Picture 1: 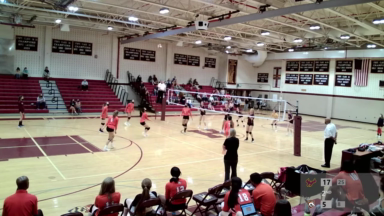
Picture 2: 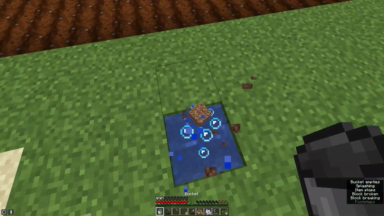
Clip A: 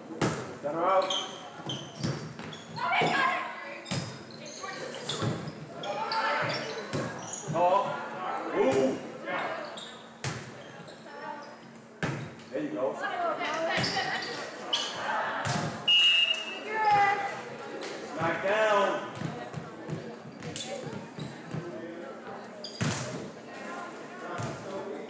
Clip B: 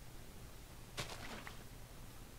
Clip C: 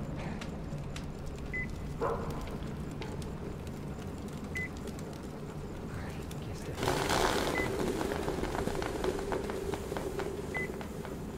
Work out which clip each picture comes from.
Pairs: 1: A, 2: B